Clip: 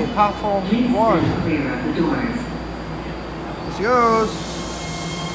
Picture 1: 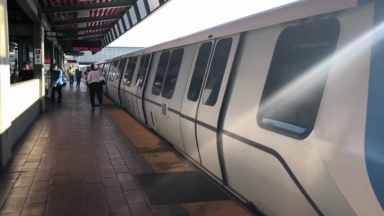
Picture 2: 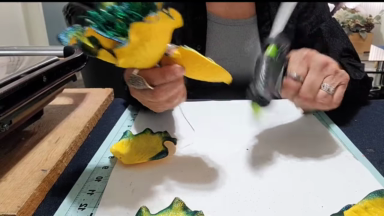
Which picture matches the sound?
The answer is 1